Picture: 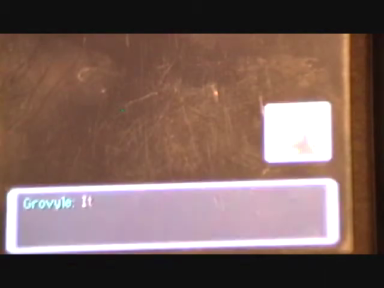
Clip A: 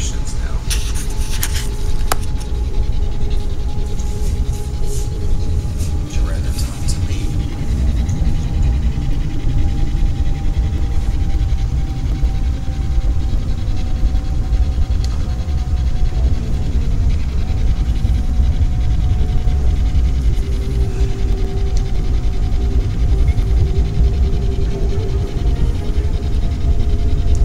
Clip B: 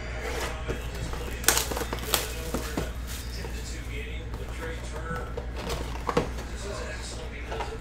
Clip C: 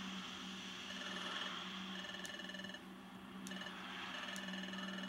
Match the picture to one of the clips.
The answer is C